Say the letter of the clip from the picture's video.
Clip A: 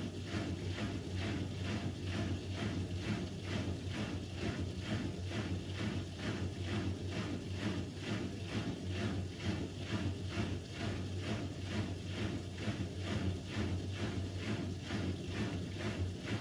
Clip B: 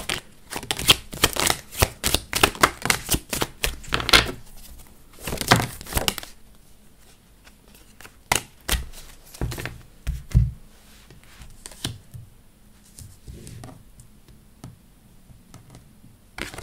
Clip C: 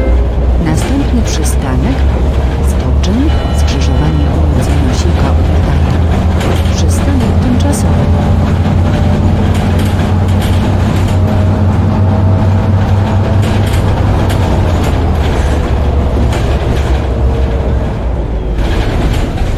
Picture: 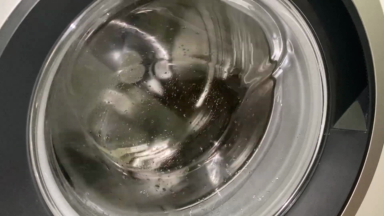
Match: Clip A